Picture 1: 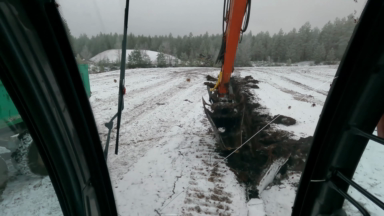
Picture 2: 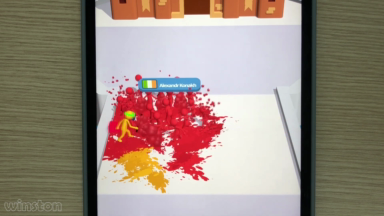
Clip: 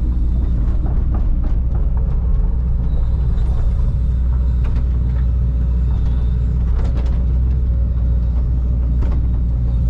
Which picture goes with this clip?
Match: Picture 1